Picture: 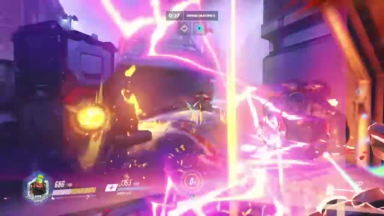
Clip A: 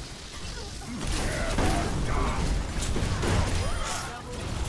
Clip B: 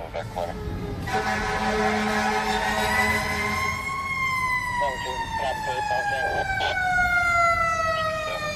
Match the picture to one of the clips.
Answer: A